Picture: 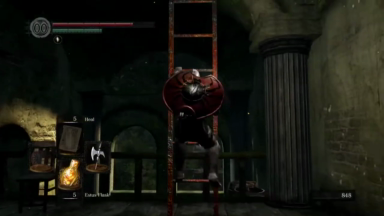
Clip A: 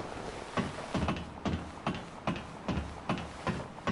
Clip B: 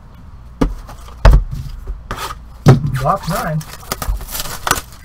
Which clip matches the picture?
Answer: A